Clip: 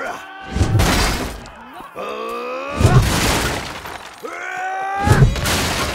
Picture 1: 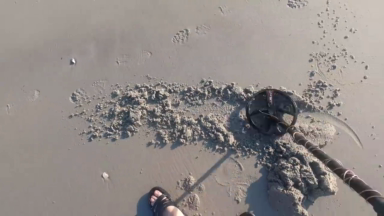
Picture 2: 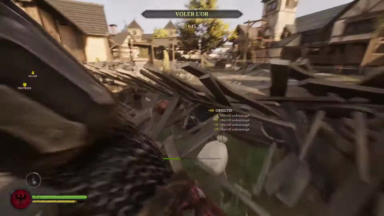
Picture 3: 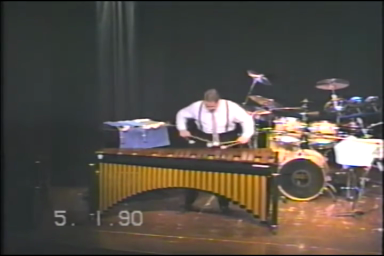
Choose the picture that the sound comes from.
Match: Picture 2